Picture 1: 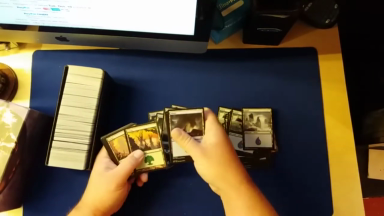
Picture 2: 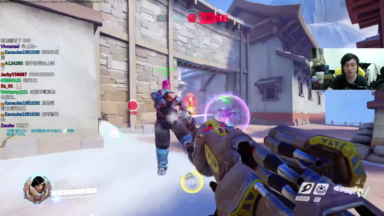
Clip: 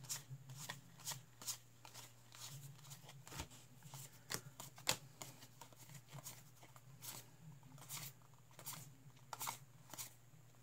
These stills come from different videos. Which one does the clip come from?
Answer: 1